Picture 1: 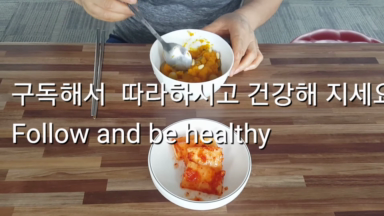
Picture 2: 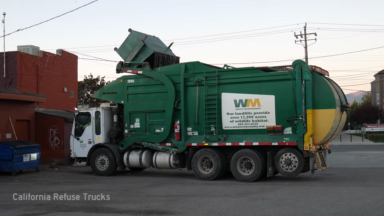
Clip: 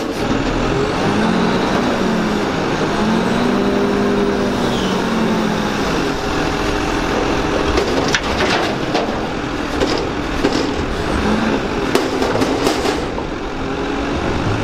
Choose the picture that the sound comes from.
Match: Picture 2